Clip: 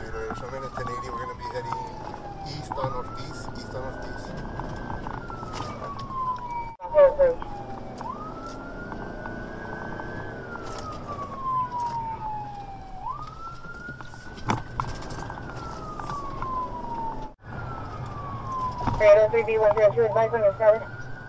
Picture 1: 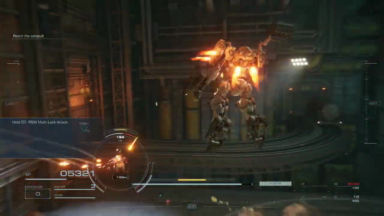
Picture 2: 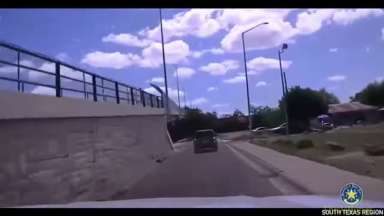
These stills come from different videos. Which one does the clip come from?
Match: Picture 2